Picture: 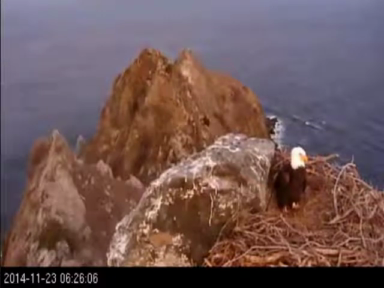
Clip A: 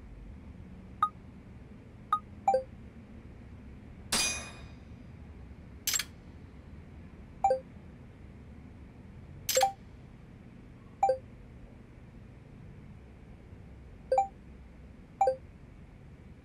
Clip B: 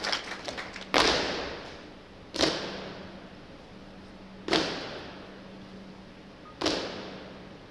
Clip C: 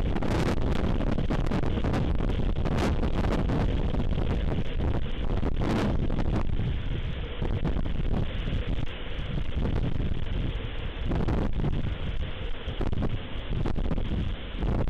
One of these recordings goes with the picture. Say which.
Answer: C